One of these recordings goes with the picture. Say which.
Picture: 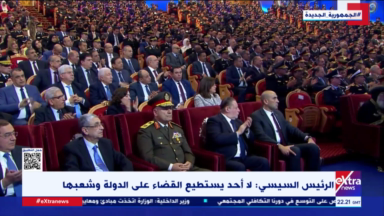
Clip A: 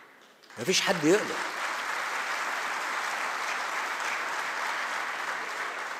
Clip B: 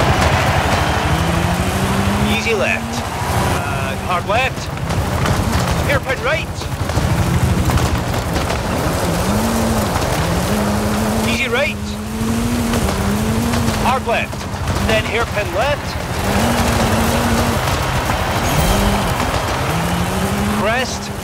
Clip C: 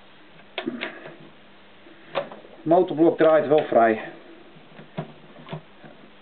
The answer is A